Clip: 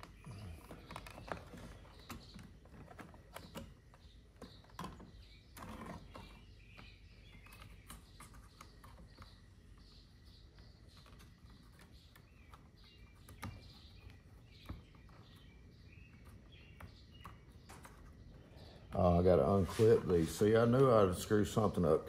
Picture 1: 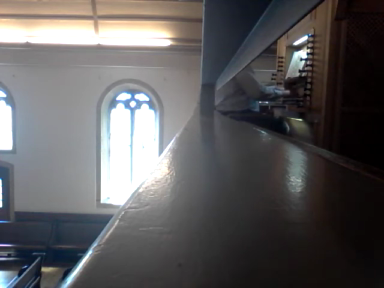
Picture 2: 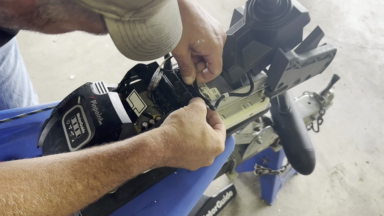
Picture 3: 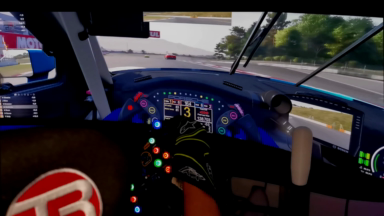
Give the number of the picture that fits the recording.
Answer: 2